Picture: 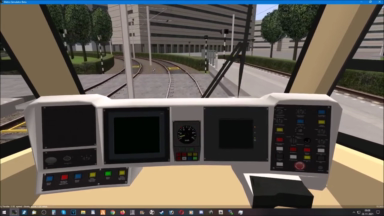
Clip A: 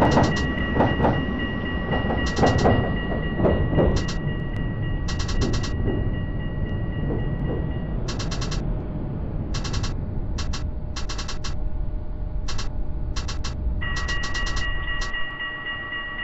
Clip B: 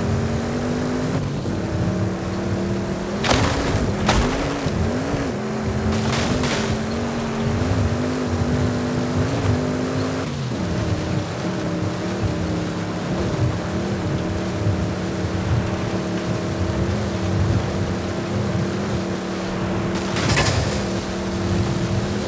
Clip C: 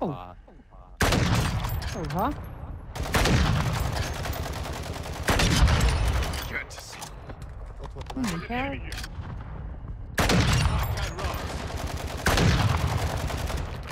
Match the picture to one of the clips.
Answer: A